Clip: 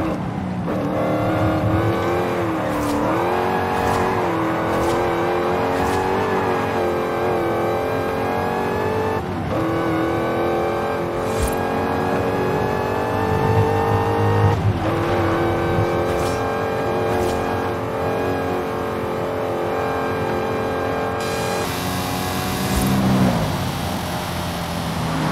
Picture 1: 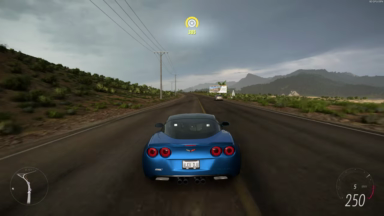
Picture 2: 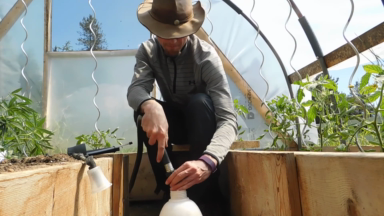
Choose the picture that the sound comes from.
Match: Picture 1